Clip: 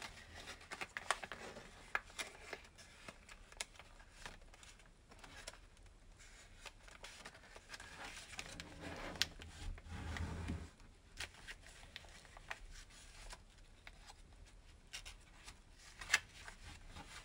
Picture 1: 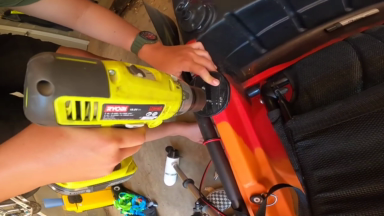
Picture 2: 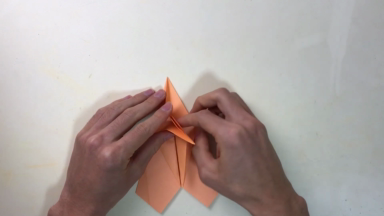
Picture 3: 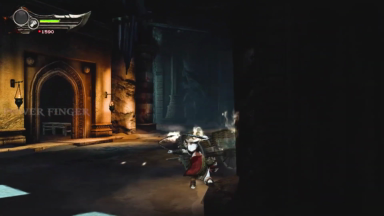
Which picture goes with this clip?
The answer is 2